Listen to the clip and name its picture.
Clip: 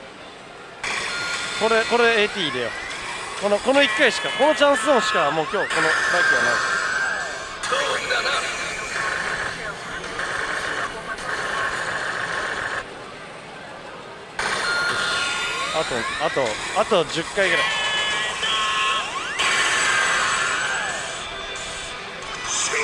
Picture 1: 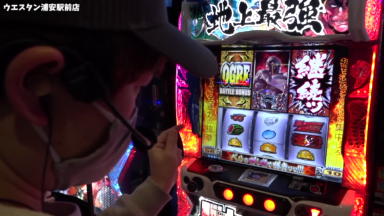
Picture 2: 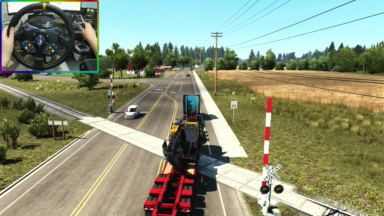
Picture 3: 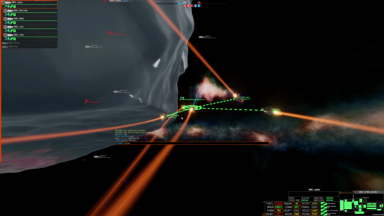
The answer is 1